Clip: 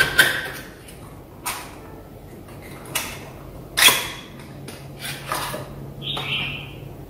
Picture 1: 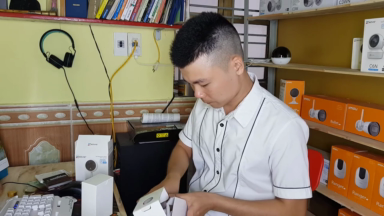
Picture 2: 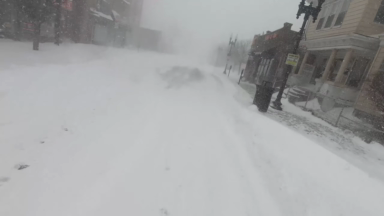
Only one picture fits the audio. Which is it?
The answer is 1